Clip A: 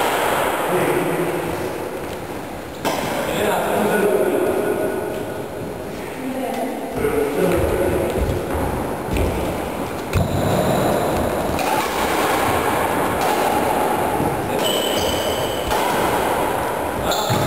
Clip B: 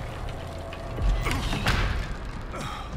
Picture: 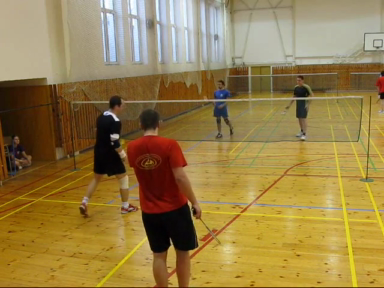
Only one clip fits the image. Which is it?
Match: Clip A